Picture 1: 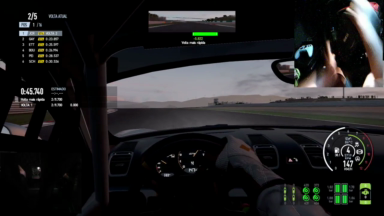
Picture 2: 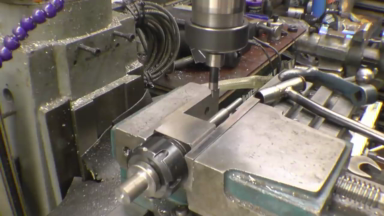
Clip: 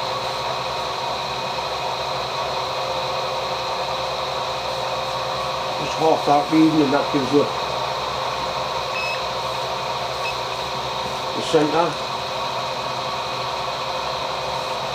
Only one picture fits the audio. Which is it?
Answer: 2